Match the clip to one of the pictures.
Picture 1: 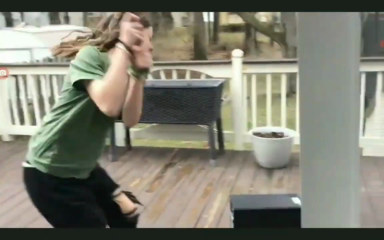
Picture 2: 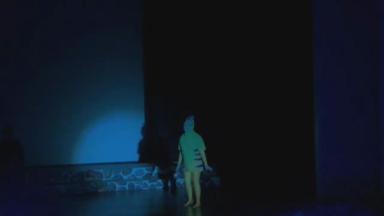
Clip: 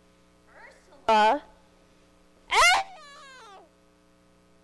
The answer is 2